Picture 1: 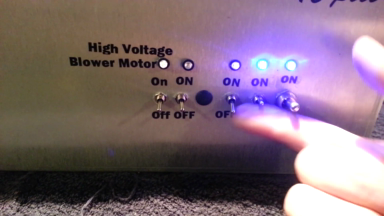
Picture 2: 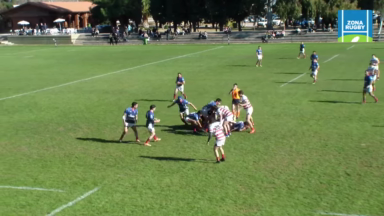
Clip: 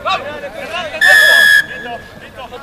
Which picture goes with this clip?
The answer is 2